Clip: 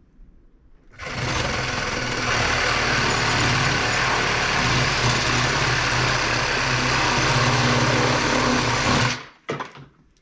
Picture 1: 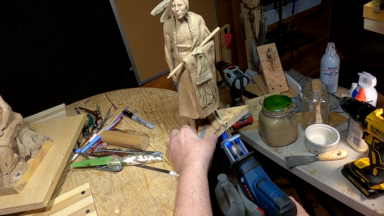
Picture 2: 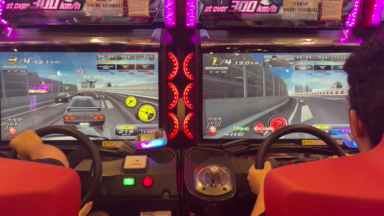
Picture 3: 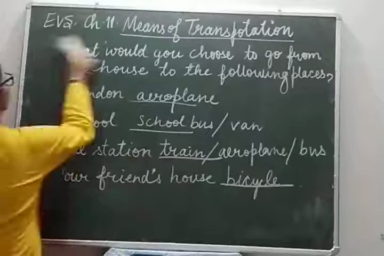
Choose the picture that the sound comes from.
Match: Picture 1